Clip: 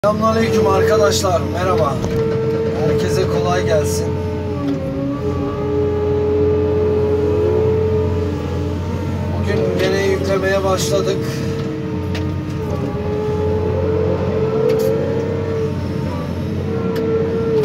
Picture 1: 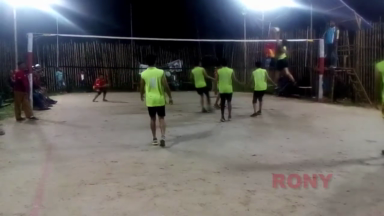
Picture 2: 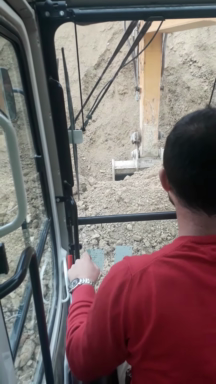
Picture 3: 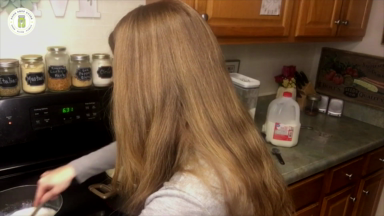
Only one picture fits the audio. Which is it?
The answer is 2